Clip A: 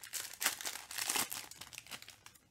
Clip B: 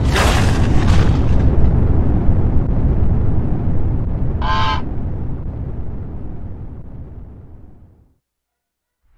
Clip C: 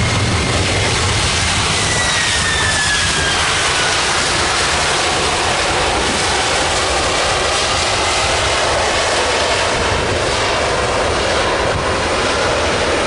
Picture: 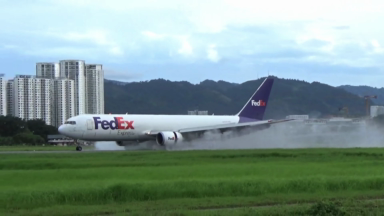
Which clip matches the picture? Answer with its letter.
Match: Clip C